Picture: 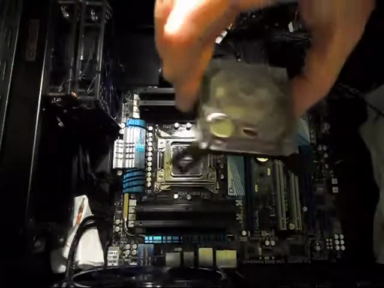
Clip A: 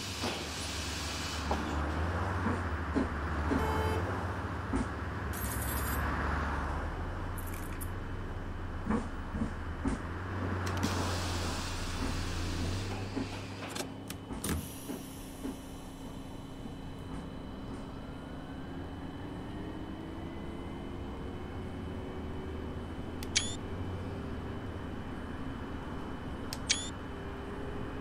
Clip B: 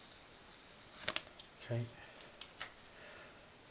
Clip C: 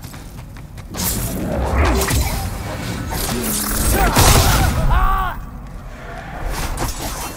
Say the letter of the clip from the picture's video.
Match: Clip B